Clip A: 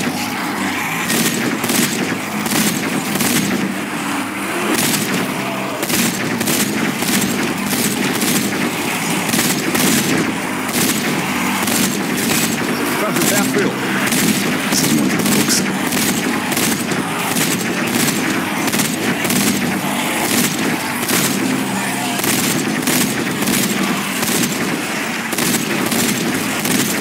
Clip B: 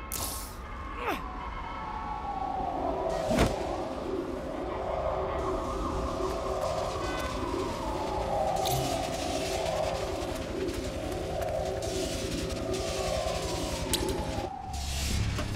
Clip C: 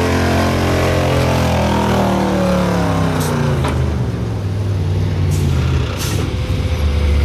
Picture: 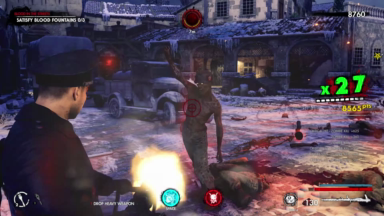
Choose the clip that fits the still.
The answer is A